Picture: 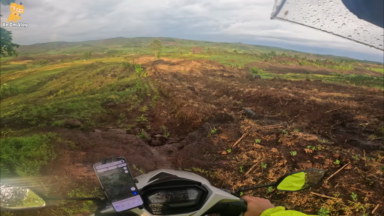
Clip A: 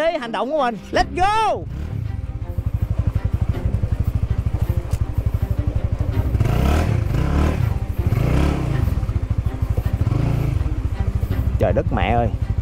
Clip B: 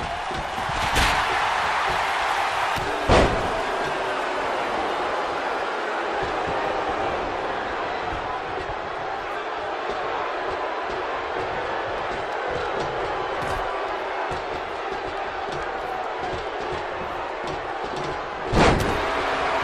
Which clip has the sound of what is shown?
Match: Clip A